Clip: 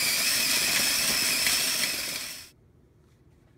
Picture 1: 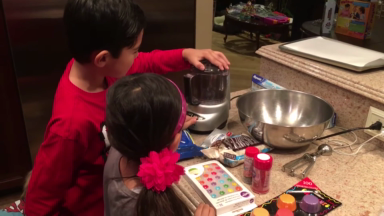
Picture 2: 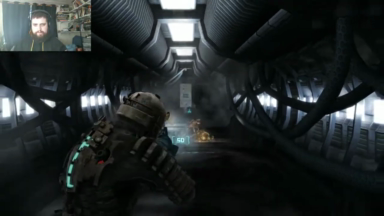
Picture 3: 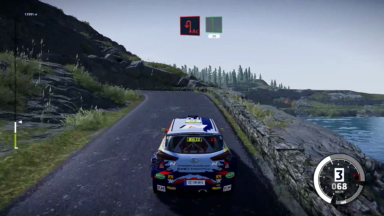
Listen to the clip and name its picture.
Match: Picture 1